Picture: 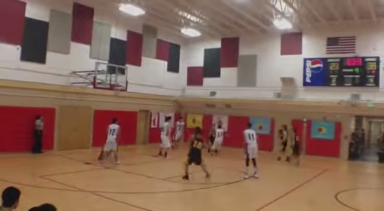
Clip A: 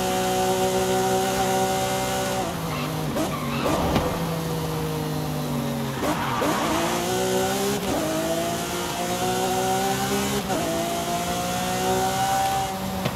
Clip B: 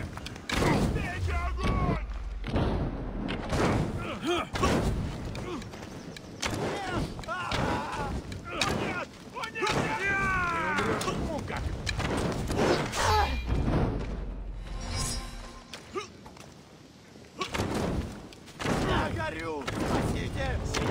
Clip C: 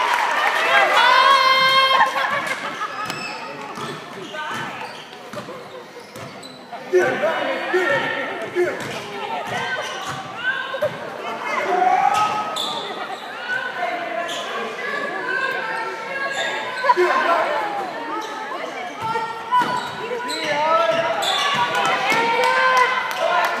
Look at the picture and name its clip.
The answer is C